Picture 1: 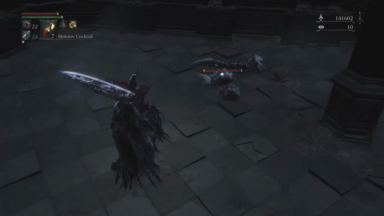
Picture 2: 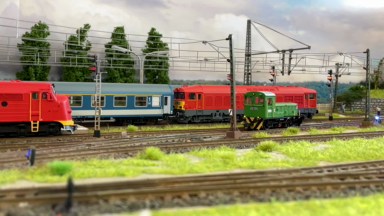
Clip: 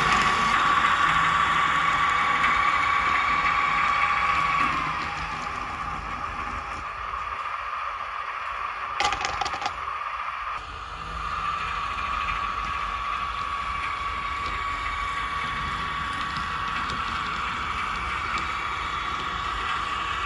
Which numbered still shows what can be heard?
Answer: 2